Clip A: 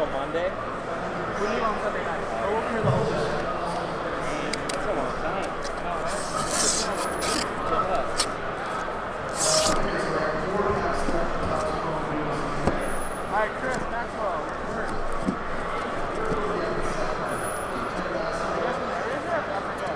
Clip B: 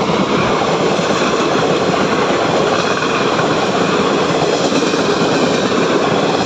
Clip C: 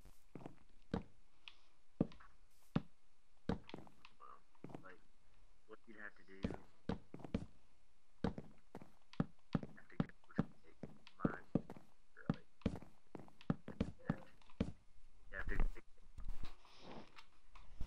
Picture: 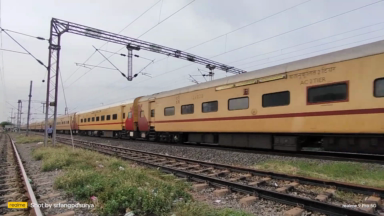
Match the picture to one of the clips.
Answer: B